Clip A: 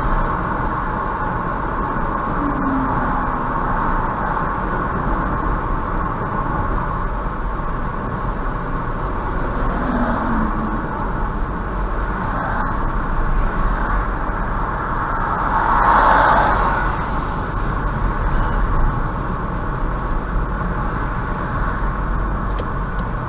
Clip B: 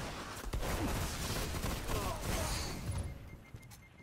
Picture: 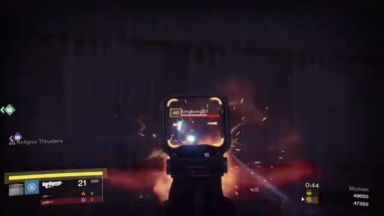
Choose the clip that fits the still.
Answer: B